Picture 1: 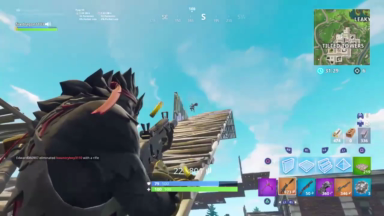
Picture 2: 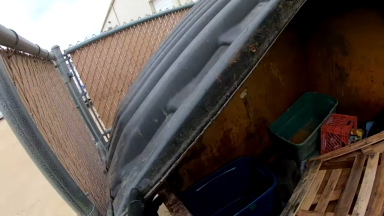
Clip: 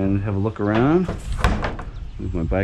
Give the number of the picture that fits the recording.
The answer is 2